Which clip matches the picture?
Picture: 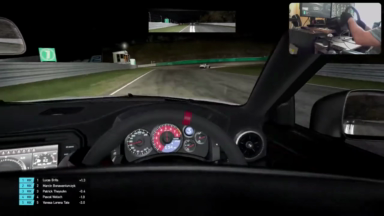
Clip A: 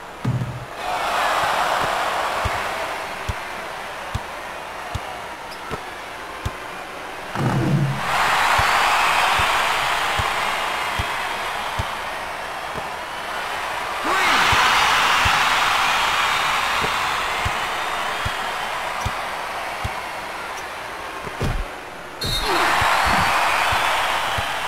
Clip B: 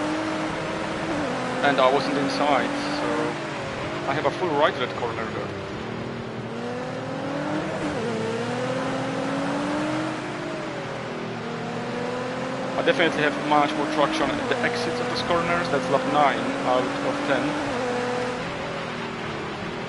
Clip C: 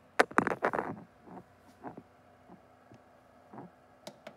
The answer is B